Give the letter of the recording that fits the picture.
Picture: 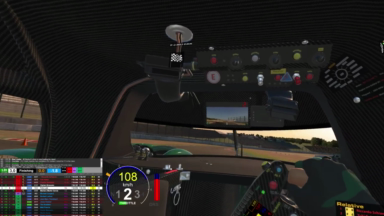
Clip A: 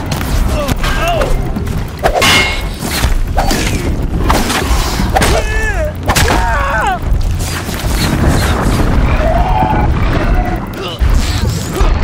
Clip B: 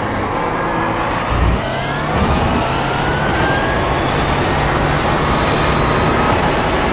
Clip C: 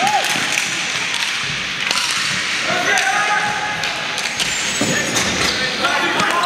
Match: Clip B